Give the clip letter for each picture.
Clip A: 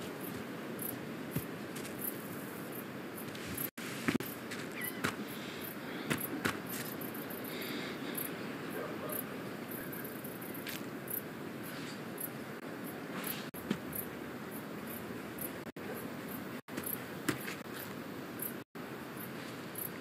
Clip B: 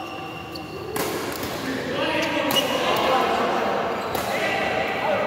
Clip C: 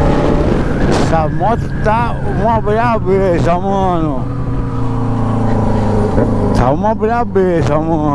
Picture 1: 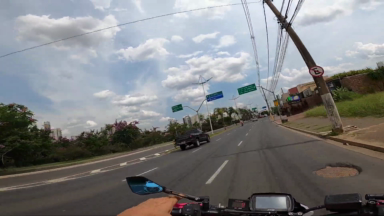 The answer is C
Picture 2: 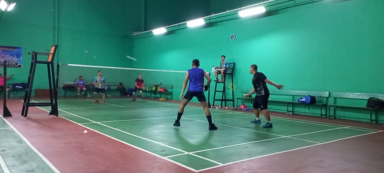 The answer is B